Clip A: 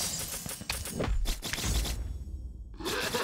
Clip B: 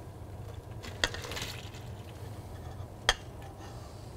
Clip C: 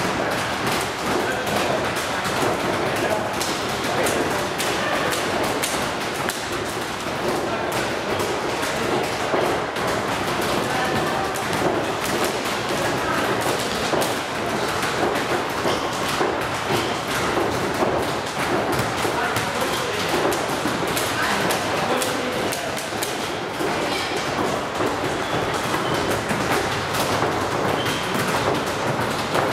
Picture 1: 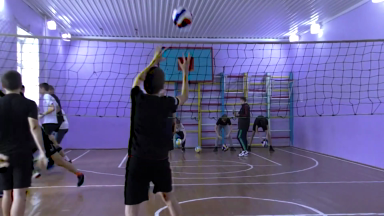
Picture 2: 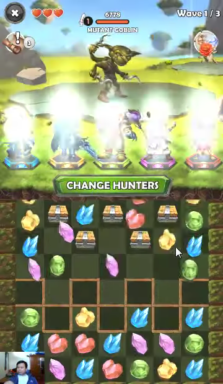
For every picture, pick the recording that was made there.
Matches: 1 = C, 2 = A